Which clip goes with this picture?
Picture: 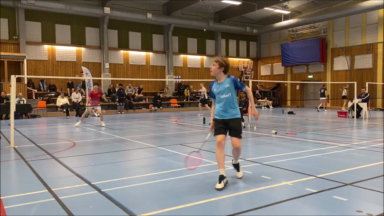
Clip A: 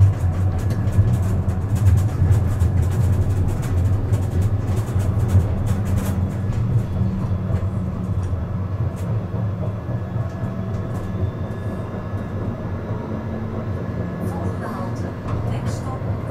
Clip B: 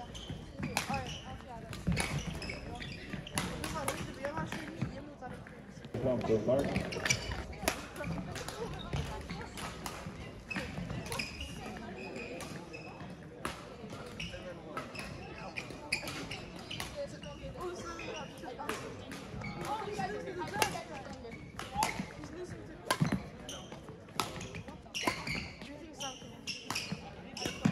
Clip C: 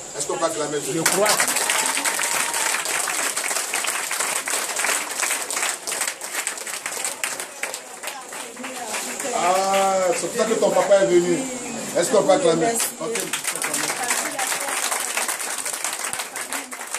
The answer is B